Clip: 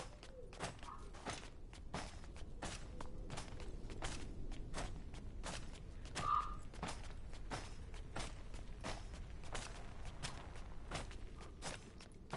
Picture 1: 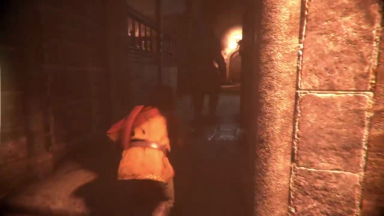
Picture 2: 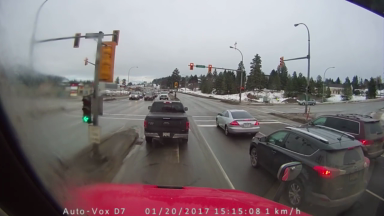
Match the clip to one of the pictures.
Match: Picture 1